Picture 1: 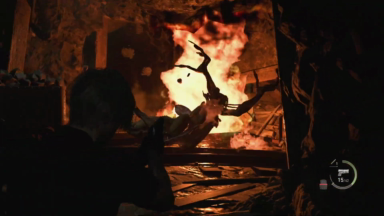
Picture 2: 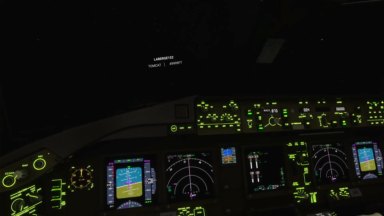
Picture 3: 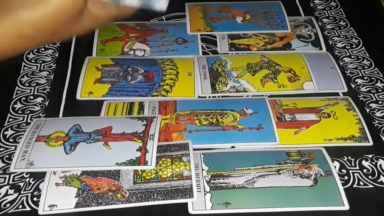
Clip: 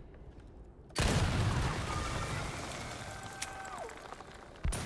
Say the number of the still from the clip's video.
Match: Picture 1